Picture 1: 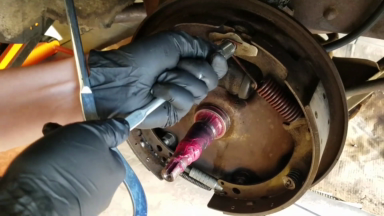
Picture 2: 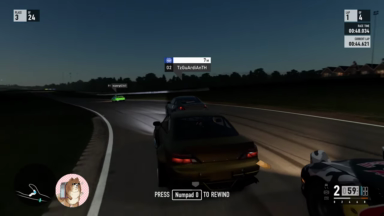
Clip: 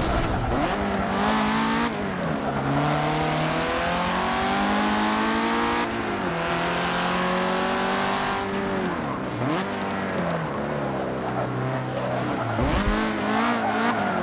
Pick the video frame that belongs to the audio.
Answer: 2